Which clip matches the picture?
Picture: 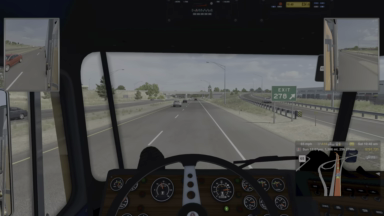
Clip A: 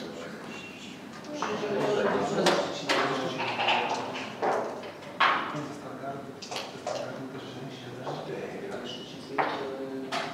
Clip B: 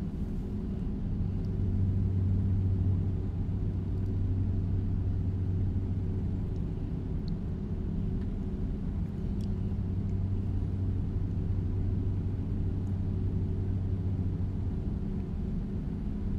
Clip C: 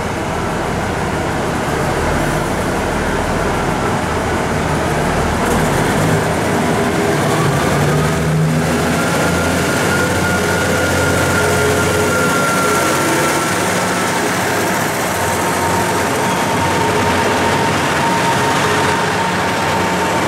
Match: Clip B